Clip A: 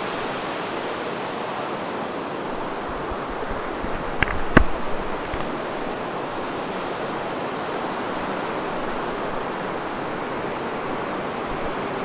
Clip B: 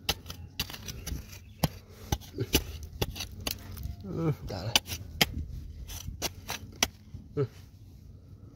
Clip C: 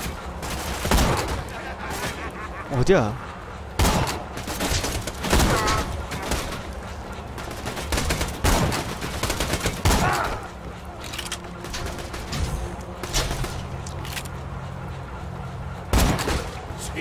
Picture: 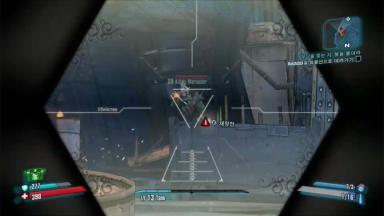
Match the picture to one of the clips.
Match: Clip C